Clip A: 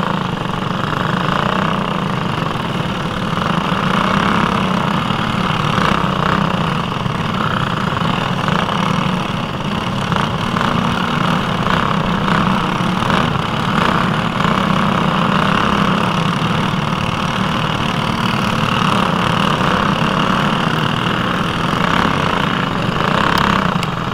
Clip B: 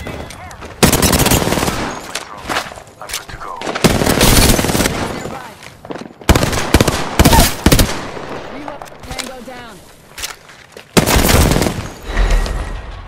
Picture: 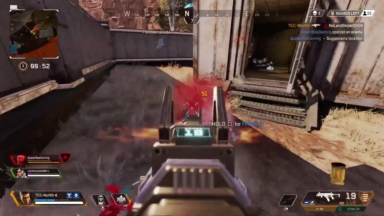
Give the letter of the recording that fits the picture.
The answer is B